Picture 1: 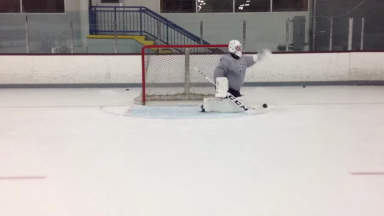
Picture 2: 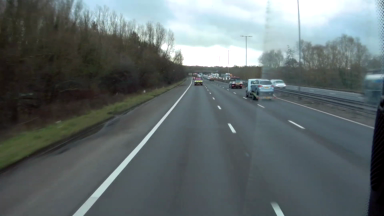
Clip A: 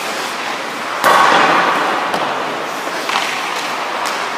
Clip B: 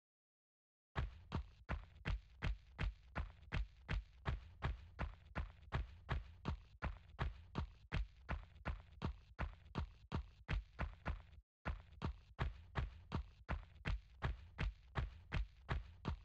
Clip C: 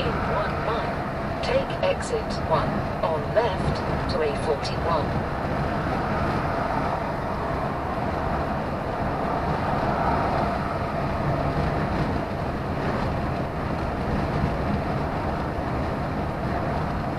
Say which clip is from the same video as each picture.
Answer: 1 A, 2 C